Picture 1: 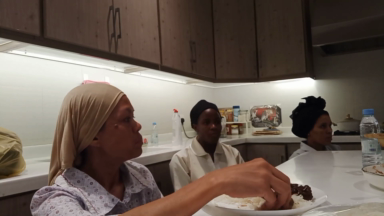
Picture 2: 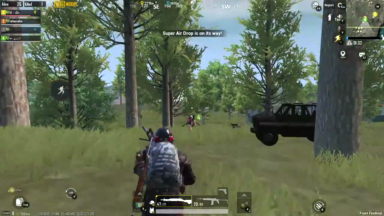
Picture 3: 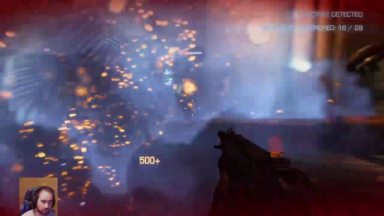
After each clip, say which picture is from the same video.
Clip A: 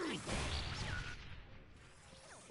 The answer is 3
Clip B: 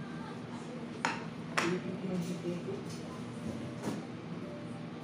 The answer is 1